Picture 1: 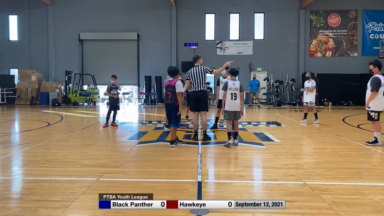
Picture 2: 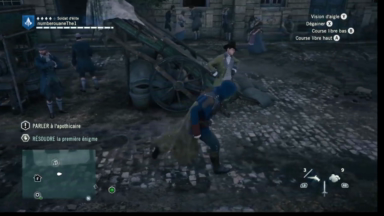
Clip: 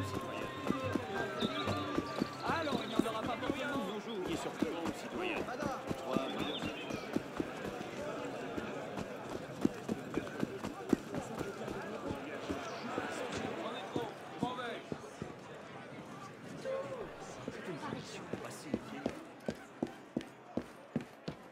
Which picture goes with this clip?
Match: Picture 2